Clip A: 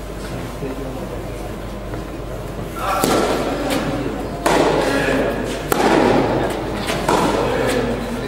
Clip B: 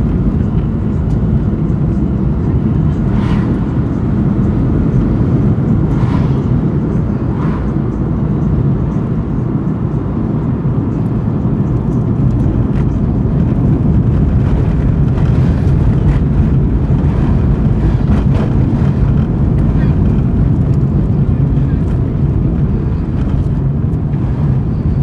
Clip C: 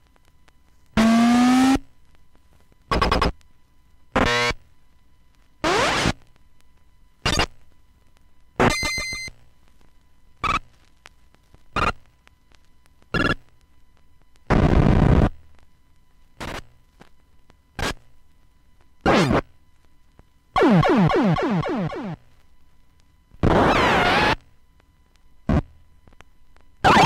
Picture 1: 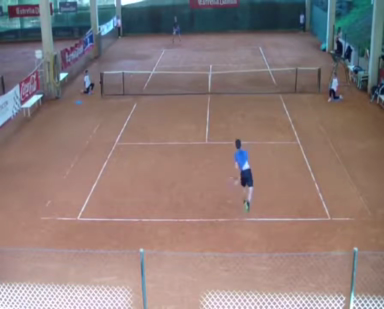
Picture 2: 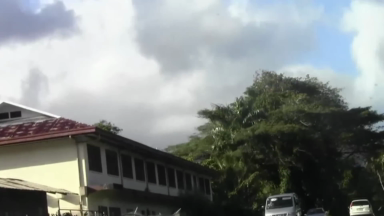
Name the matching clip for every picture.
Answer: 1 A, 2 B